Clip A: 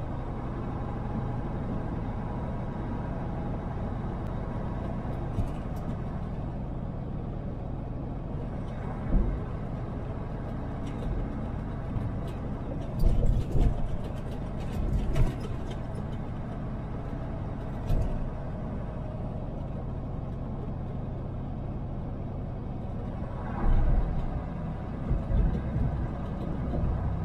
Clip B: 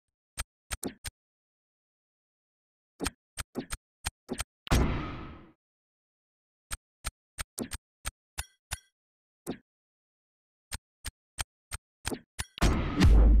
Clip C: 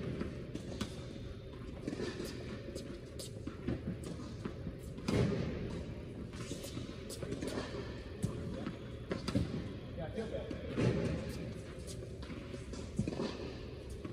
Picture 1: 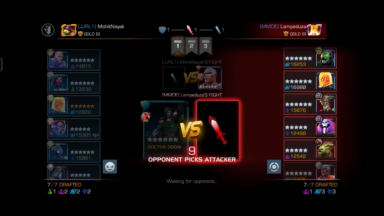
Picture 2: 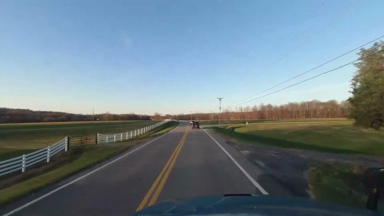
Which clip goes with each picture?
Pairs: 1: B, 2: A